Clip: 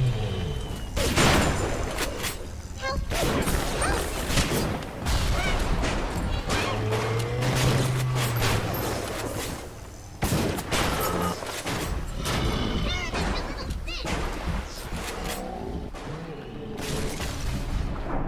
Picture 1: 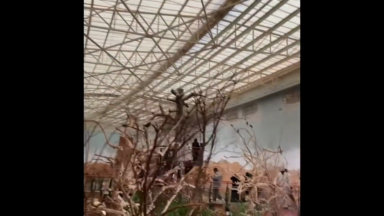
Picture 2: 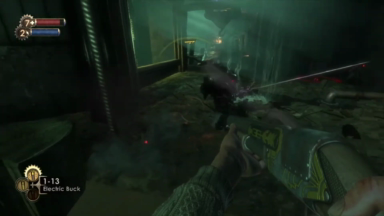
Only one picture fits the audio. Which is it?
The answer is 2